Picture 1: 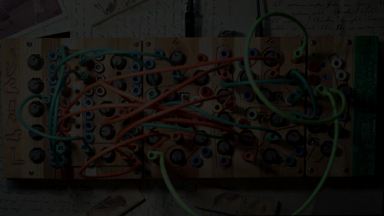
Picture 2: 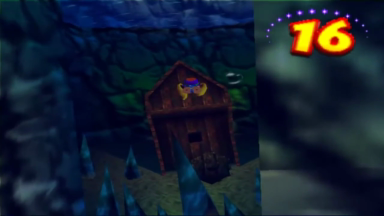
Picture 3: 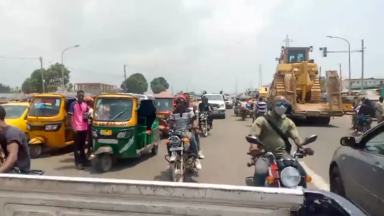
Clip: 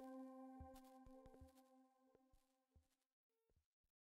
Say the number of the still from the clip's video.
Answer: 1